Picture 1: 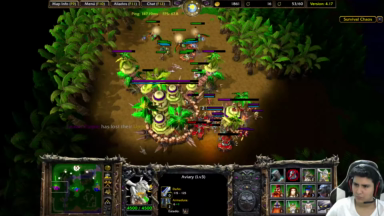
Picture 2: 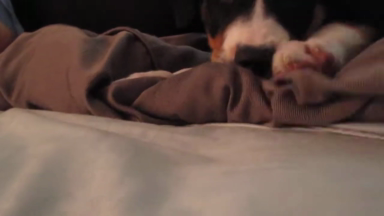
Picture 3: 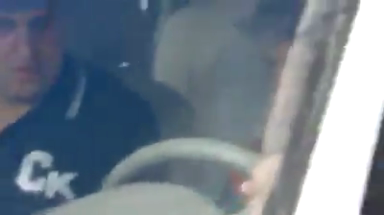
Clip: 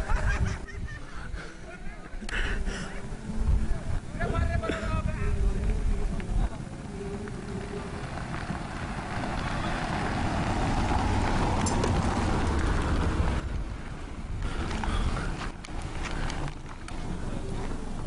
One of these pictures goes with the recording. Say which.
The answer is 3